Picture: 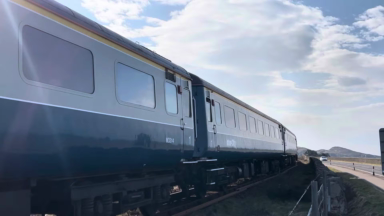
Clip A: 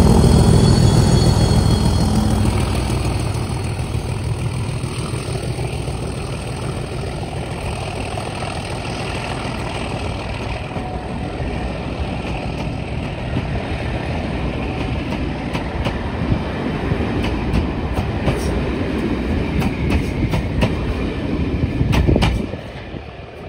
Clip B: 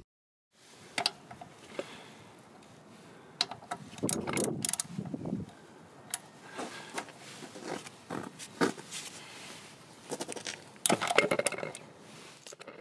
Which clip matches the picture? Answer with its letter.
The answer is A